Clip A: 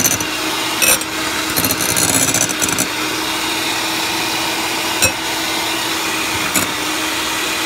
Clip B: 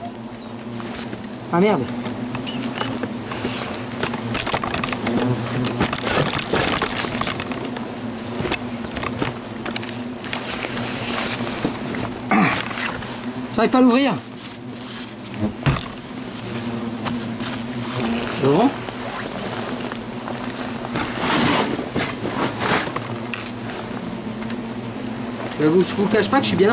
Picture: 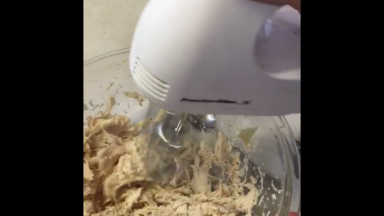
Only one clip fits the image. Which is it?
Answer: A